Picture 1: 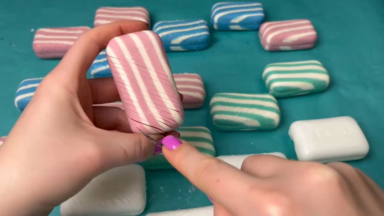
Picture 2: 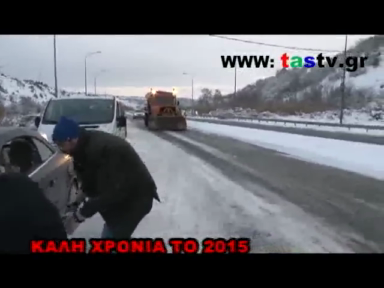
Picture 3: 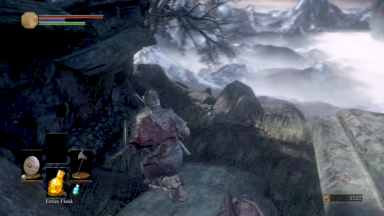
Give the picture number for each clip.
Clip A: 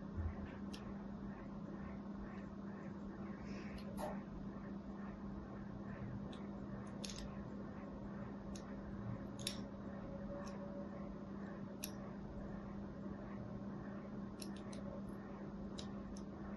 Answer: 1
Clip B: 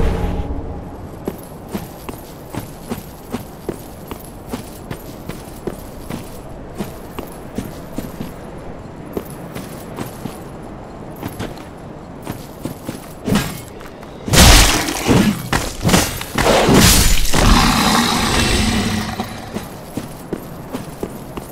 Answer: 3